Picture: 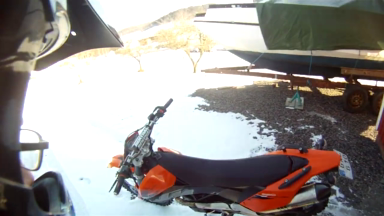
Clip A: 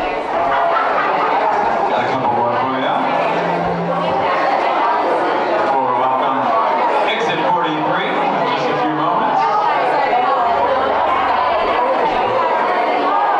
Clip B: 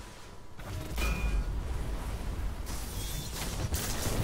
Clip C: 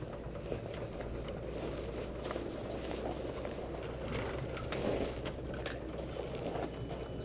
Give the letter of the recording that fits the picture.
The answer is C